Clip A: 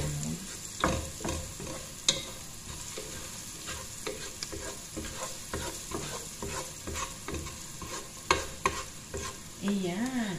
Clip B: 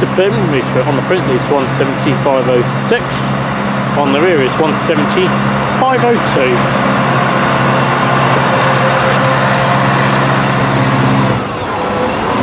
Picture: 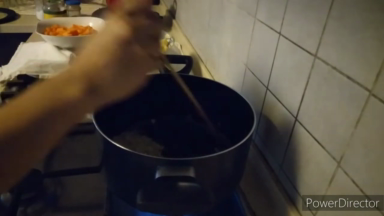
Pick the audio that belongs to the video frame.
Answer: A